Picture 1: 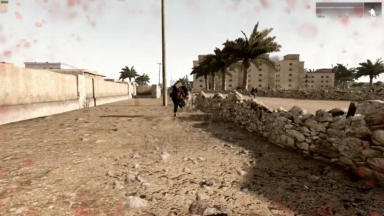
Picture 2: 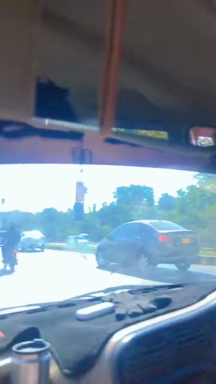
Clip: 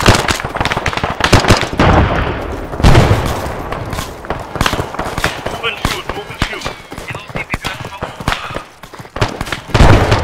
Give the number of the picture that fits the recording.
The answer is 1